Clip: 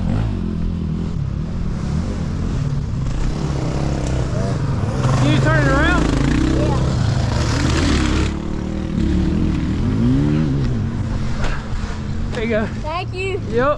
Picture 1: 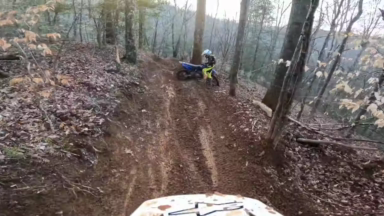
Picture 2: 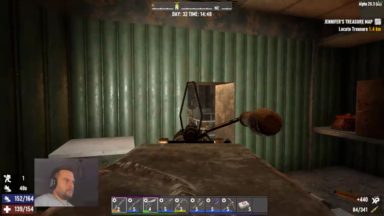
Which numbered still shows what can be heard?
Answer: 1